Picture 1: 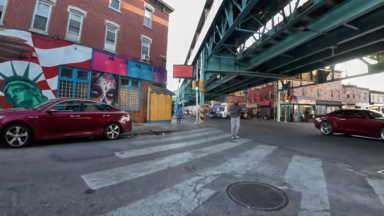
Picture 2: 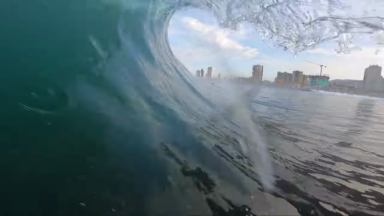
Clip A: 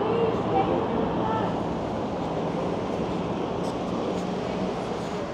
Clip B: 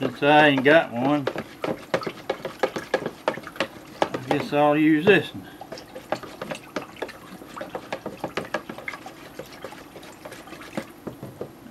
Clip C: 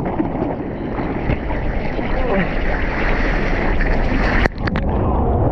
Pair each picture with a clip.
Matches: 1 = A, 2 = C